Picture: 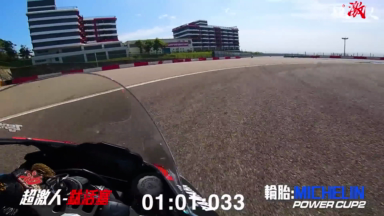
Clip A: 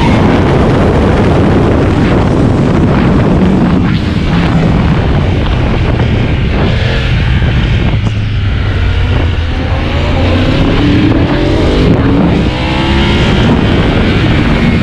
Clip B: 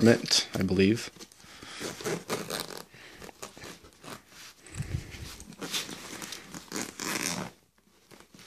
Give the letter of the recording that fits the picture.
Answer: A